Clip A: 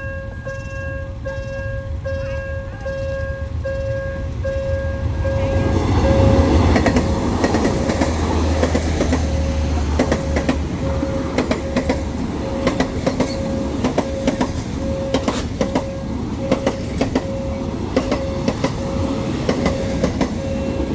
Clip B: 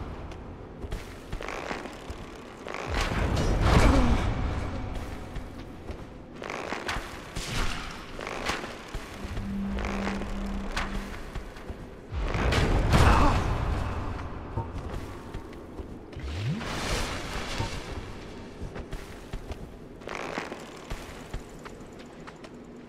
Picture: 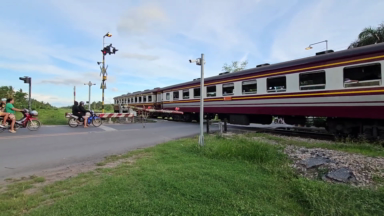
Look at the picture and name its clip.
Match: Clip A